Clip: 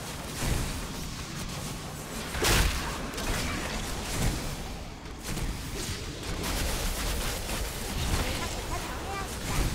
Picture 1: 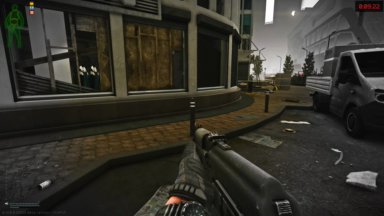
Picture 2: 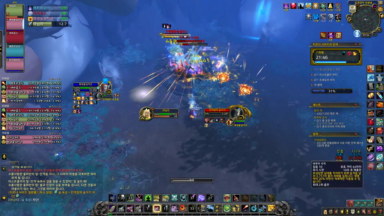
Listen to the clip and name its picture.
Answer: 2